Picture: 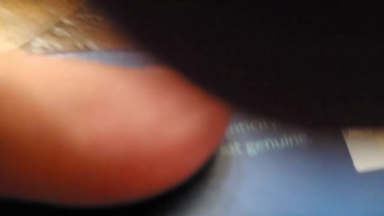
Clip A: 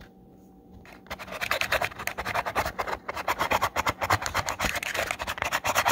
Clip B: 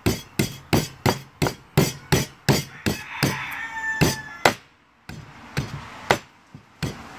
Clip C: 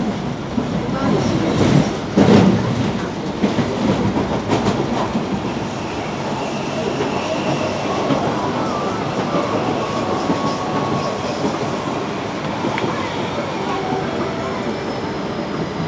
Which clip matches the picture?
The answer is A